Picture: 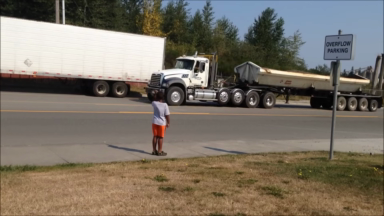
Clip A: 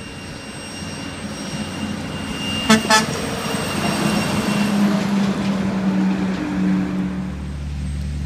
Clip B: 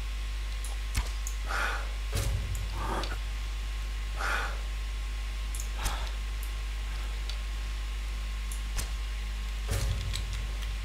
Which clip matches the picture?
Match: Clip A